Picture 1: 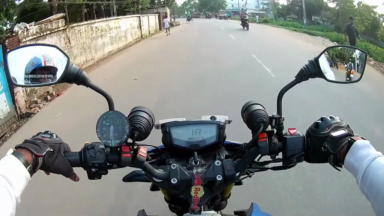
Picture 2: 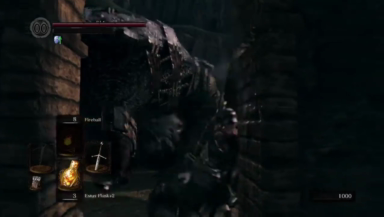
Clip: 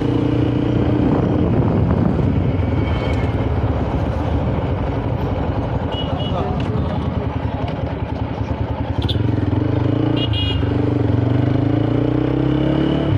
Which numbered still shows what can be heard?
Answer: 1